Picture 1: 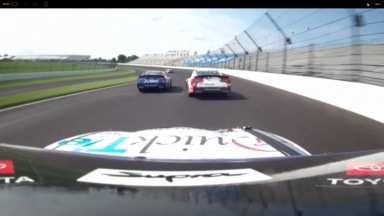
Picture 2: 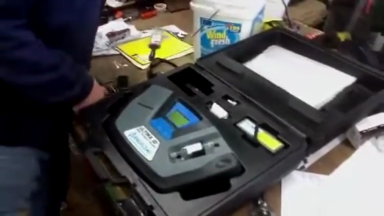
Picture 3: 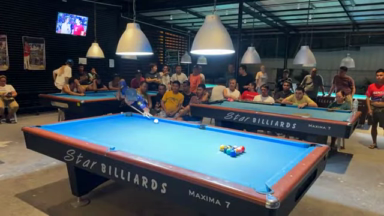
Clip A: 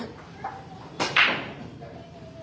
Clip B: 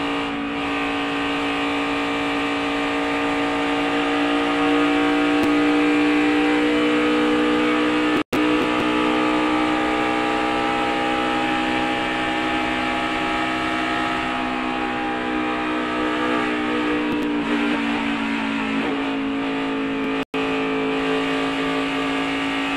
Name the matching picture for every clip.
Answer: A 3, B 1